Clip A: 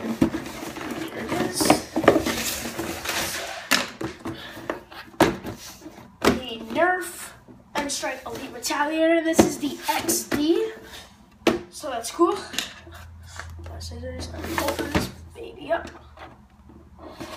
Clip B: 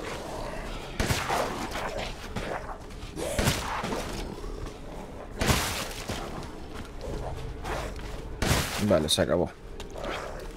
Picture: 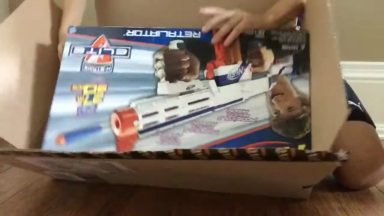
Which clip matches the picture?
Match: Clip A